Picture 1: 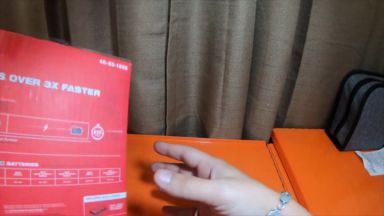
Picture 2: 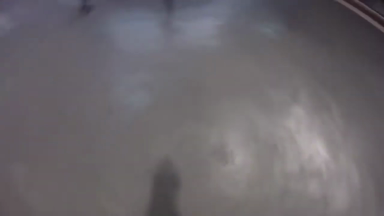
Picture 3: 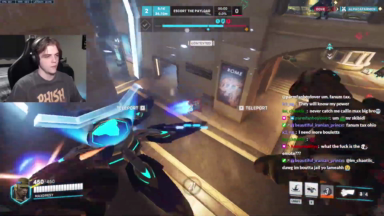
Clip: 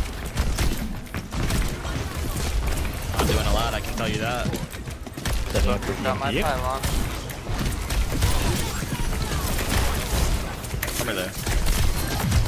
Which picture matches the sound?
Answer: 3